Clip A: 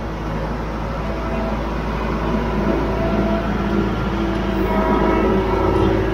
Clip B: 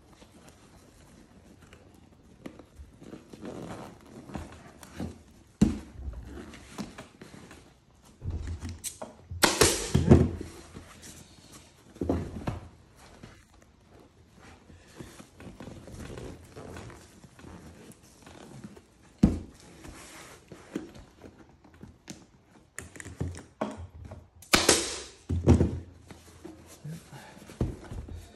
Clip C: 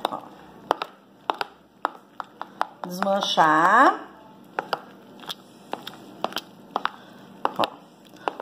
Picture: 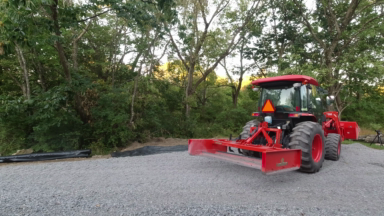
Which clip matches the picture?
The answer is A